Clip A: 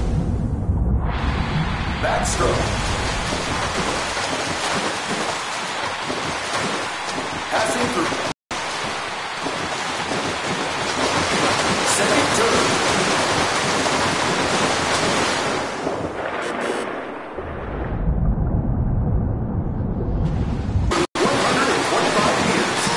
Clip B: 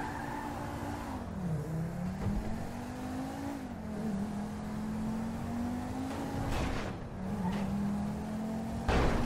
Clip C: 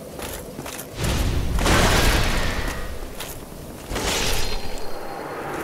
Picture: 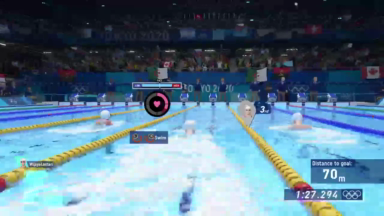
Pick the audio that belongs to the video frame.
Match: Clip A